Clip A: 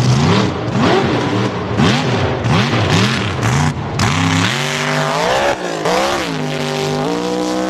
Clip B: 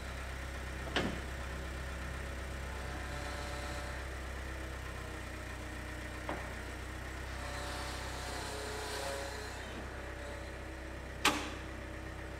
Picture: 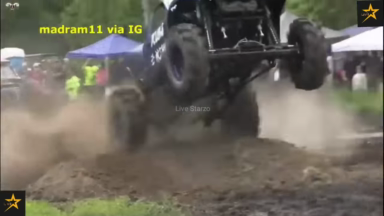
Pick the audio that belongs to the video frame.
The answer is A